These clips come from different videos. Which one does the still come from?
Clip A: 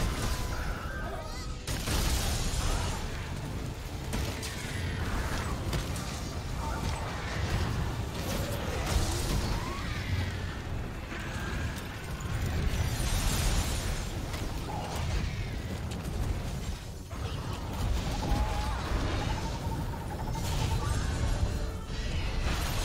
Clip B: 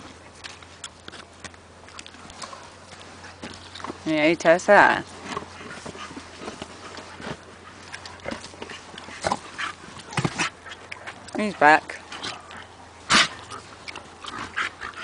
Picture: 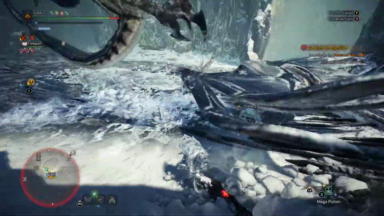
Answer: A